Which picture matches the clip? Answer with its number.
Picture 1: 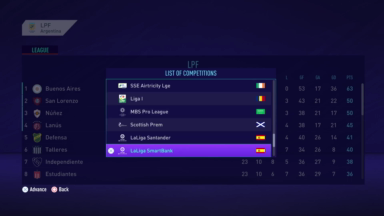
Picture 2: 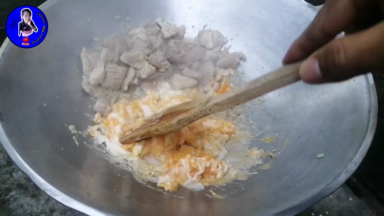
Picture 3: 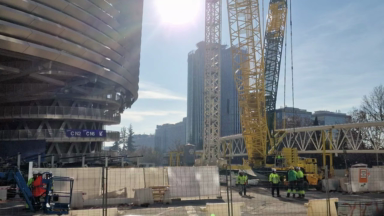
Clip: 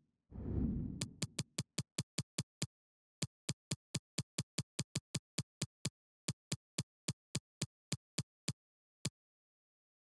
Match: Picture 1